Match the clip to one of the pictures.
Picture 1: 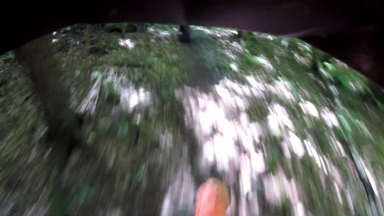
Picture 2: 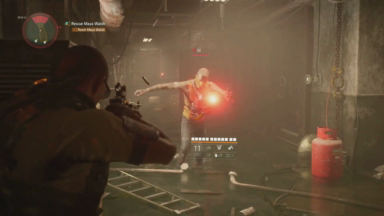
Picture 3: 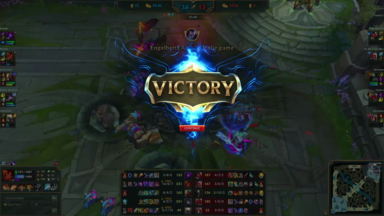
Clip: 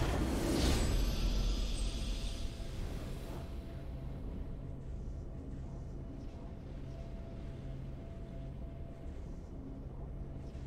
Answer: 3